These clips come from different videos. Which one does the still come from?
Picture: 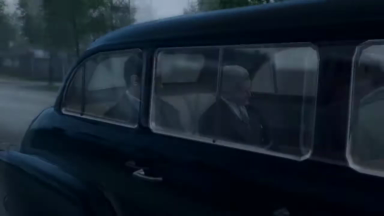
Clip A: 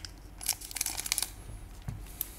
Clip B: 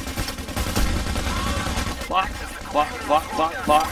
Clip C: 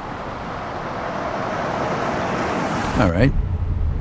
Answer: C